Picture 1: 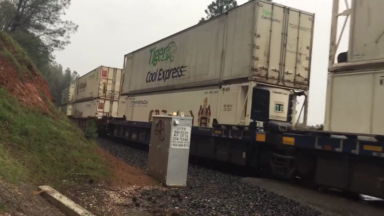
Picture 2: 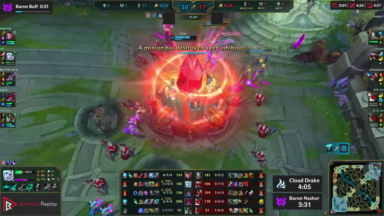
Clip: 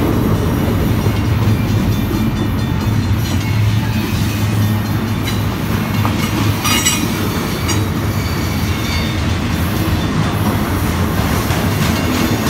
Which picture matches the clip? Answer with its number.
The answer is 1